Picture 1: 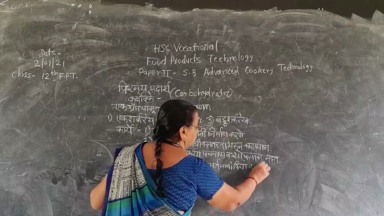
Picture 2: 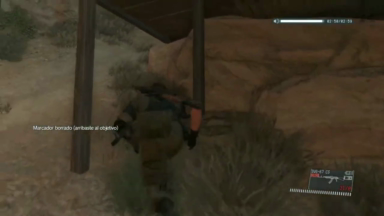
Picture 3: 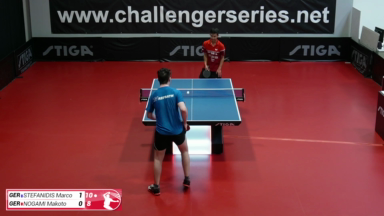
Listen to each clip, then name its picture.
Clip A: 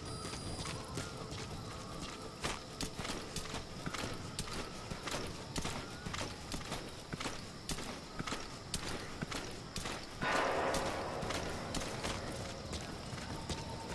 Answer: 2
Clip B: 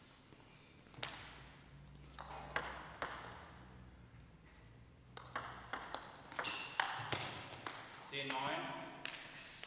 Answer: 3